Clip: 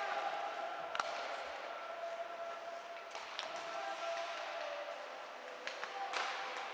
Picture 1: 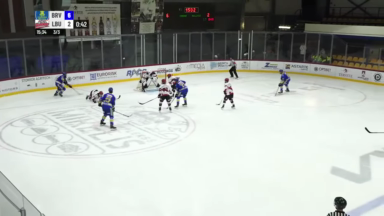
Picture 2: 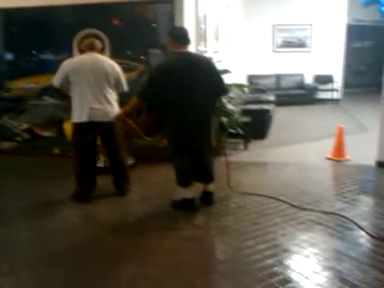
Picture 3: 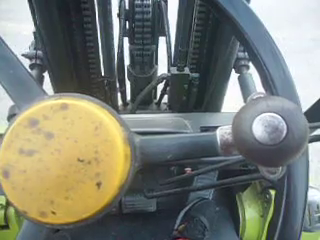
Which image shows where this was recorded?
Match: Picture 1